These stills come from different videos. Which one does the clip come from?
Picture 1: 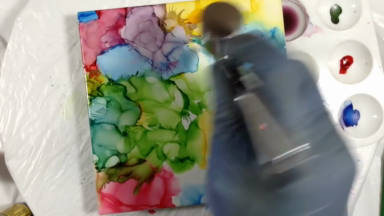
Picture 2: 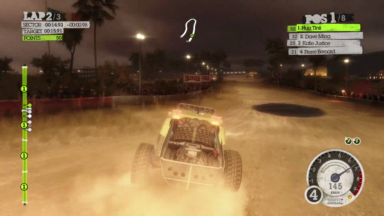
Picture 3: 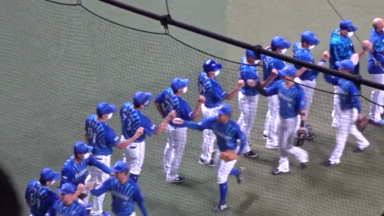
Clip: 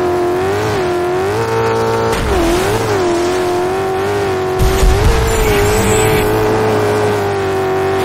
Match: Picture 2